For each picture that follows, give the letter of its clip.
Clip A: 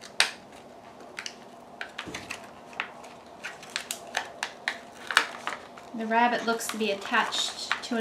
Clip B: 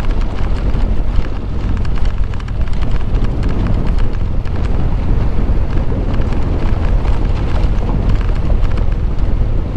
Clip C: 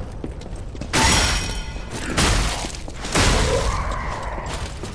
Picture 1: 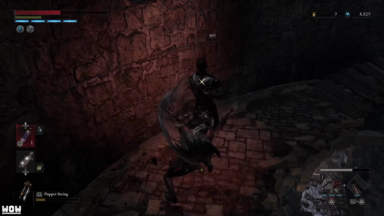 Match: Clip C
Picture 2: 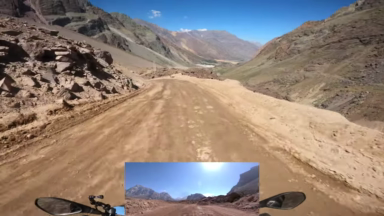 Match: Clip B